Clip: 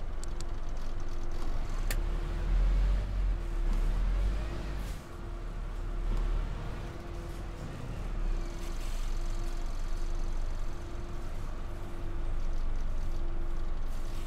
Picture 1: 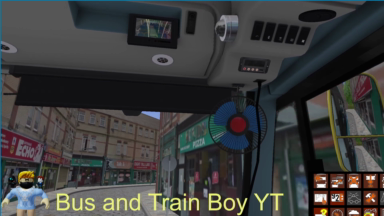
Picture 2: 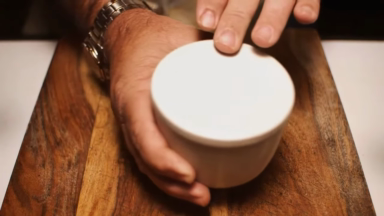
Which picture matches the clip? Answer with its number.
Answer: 1